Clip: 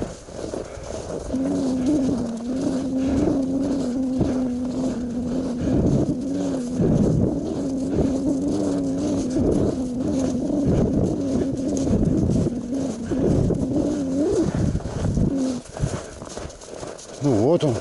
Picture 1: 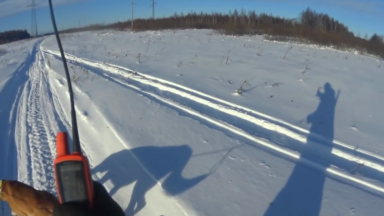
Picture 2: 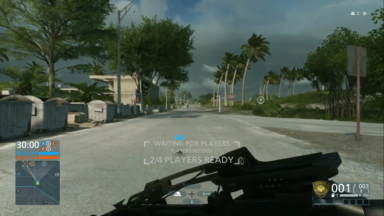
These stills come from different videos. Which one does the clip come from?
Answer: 1